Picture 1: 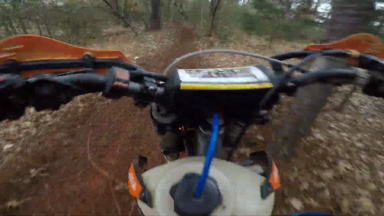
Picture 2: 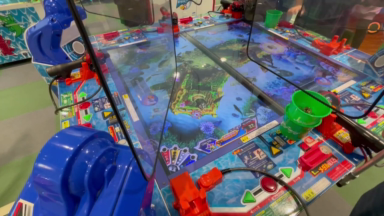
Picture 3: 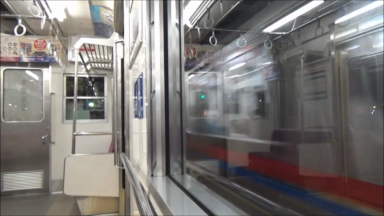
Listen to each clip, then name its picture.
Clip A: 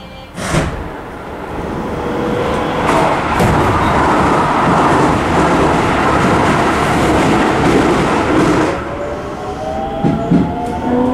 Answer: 3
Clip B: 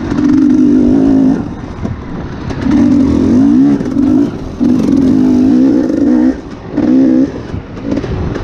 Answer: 1